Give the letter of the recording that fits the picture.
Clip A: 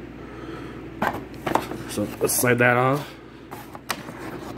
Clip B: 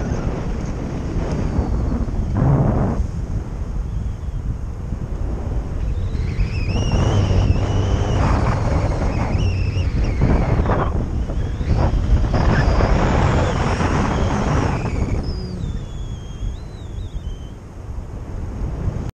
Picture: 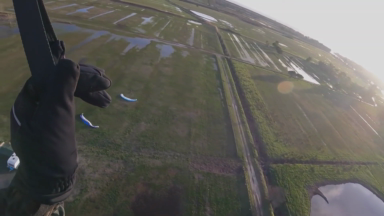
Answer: B